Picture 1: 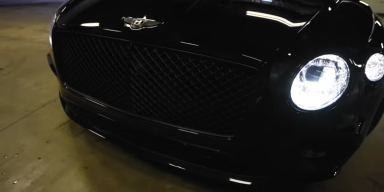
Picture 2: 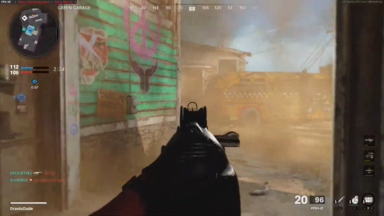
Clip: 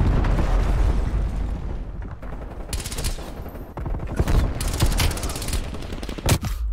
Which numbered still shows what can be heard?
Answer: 2